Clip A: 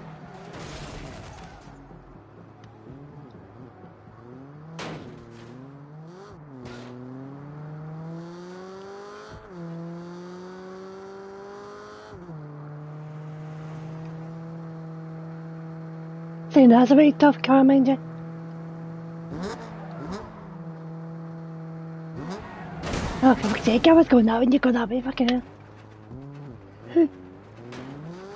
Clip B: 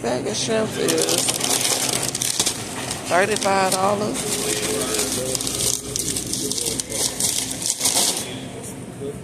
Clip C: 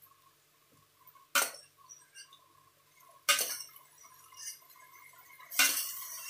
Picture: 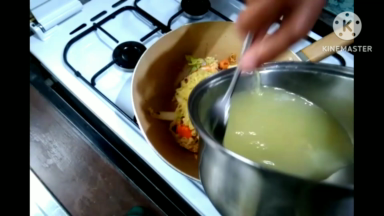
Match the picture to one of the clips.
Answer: C